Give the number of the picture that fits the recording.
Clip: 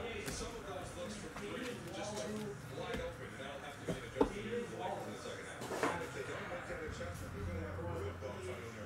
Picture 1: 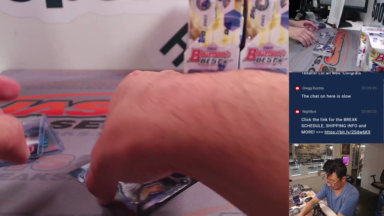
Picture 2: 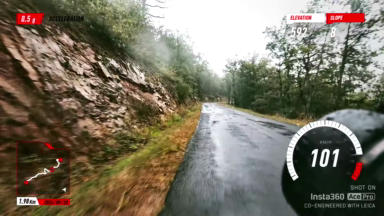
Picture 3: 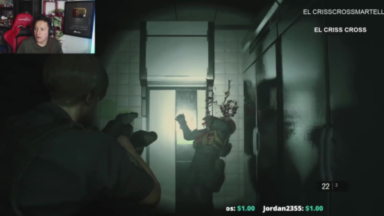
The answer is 1